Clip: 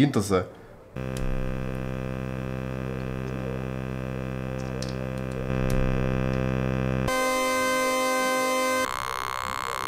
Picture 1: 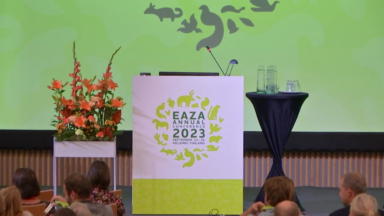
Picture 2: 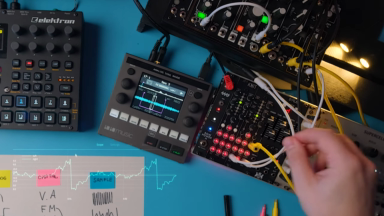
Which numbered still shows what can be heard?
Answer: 2